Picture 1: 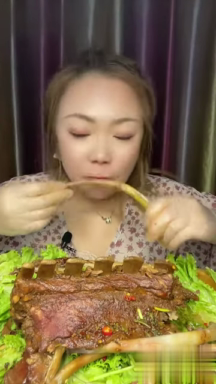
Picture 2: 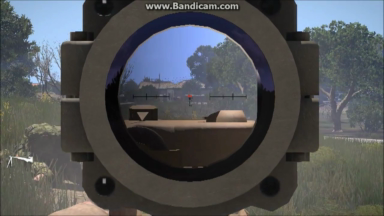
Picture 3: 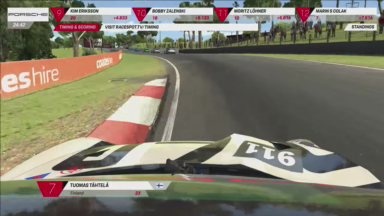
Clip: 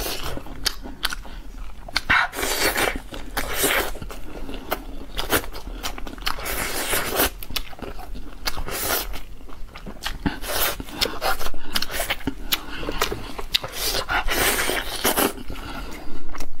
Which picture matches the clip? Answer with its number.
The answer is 1